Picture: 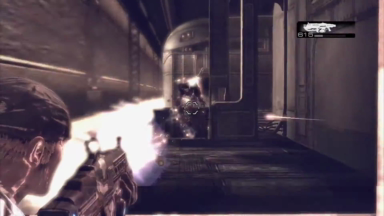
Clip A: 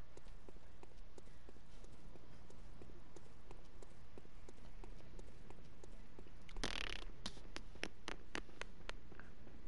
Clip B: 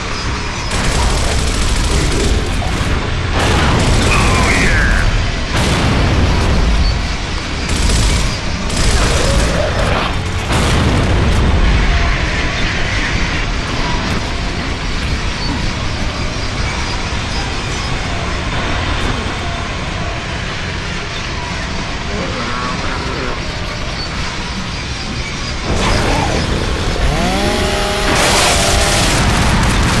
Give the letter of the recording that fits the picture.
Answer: B